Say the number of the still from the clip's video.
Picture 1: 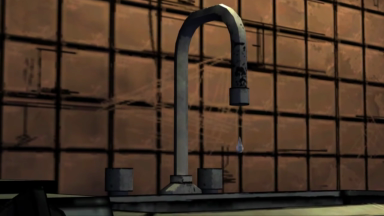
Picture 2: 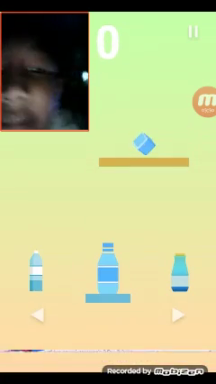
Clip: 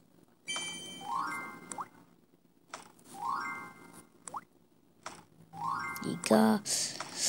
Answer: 2